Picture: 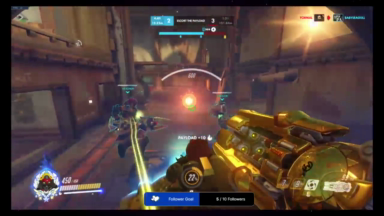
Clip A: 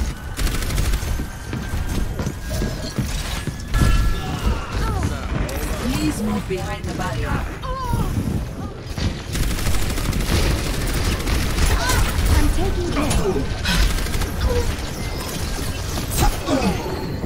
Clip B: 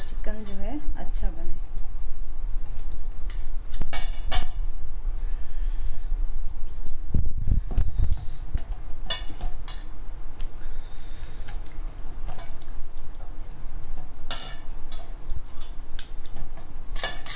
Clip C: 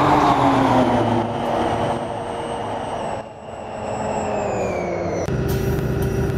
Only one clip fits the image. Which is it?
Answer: A